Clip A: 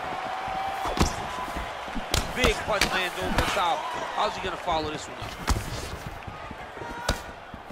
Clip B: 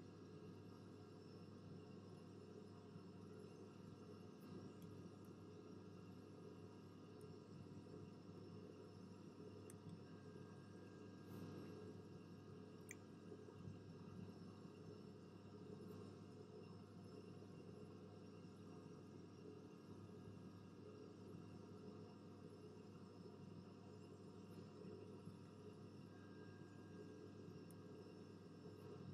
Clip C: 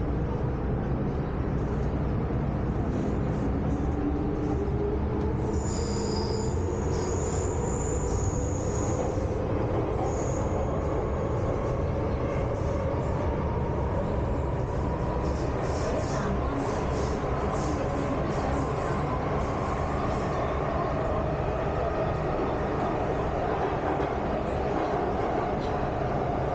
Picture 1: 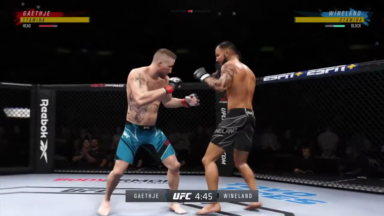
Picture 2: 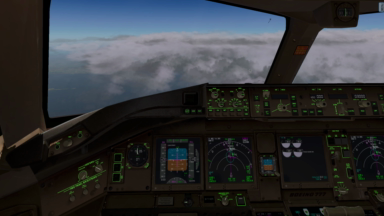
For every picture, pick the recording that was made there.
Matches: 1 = A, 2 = B